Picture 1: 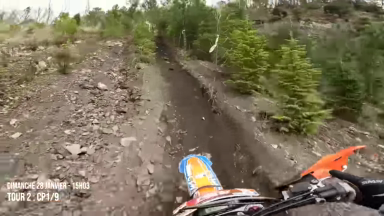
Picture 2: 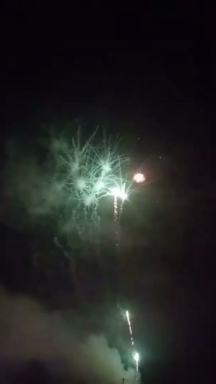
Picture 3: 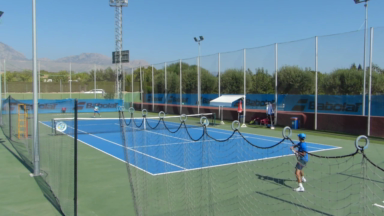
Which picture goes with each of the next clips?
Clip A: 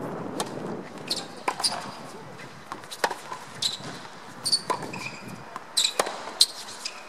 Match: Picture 3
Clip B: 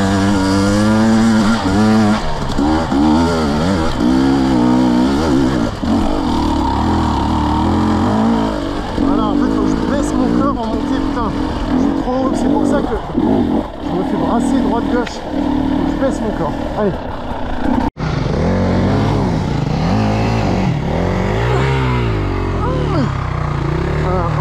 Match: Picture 1